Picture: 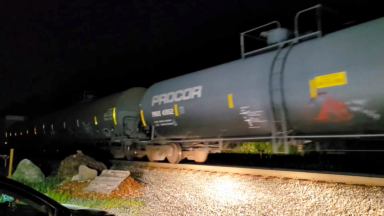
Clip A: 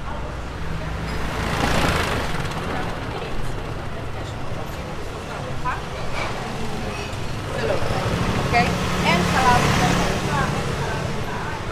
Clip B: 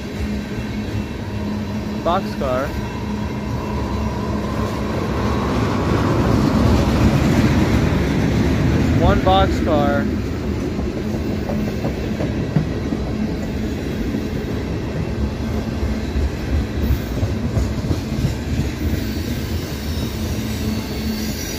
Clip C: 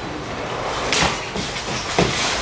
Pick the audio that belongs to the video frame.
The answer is B